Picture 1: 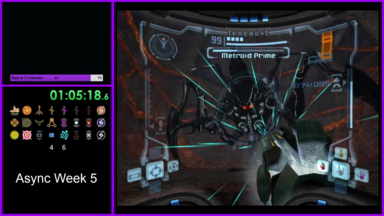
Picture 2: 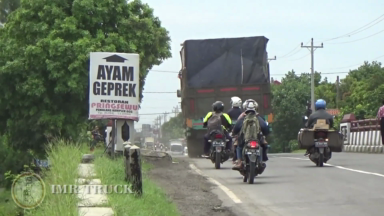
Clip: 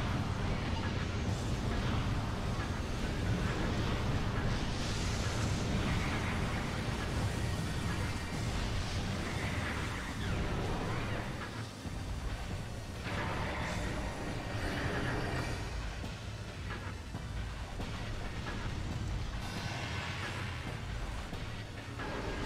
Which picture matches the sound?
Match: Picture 1